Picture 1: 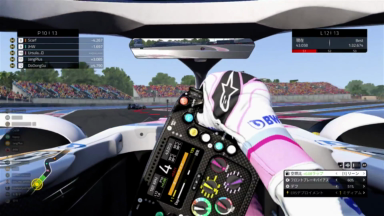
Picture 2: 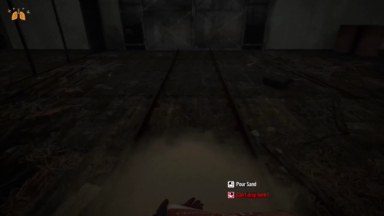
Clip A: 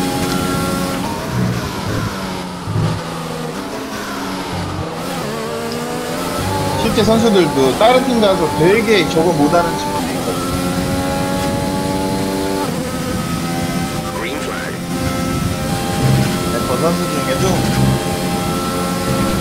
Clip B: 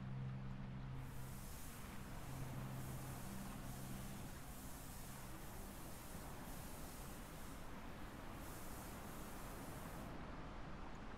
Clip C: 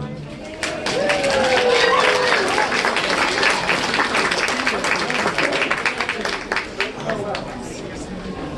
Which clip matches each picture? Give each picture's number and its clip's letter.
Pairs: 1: A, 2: B